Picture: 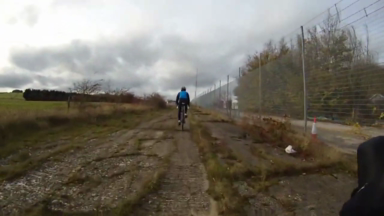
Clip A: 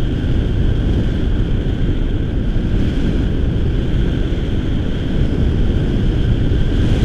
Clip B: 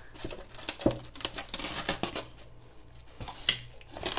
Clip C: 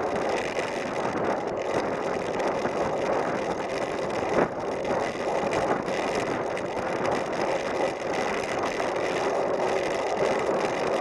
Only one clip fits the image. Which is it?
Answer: C